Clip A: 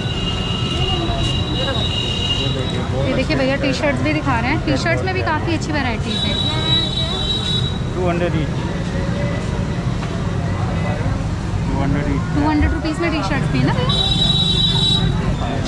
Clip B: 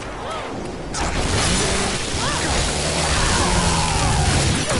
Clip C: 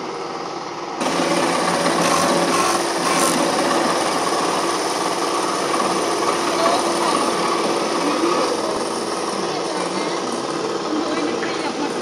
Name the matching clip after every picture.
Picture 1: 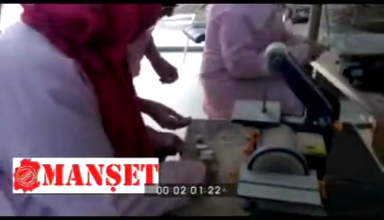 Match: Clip C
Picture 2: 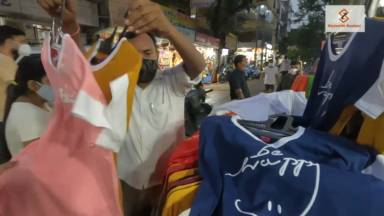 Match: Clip A